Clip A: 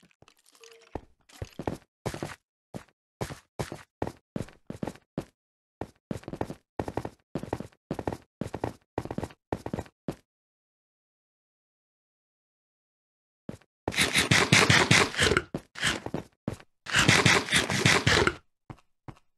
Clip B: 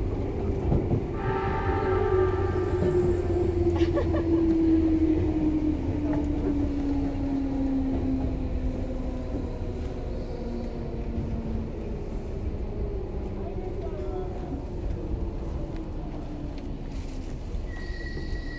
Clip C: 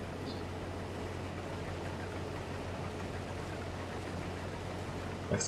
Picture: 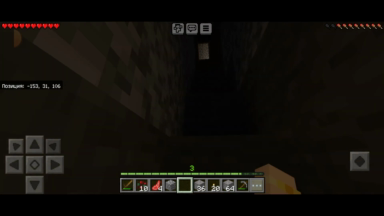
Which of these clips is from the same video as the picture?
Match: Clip A